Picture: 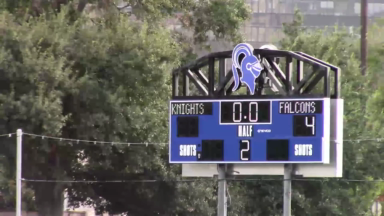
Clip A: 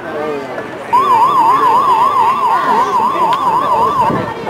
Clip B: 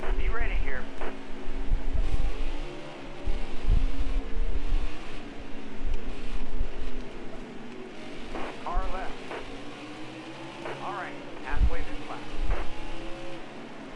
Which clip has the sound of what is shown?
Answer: A